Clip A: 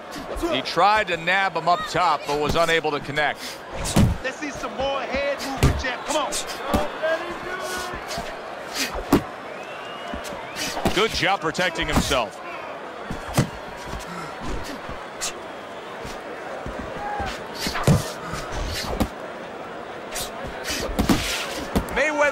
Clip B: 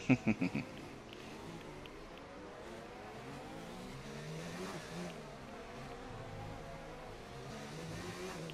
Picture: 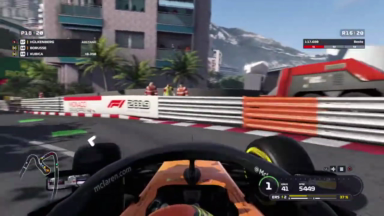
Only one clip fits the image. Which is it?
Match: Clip B